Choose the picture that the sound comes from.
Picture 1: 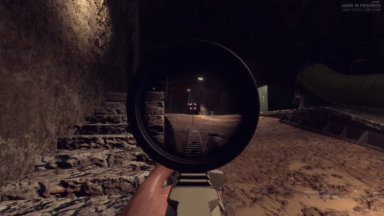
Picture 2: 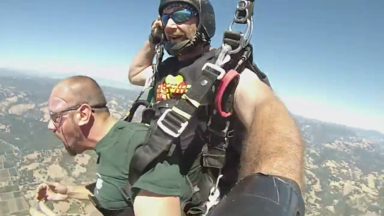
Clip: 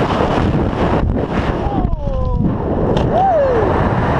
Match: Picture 2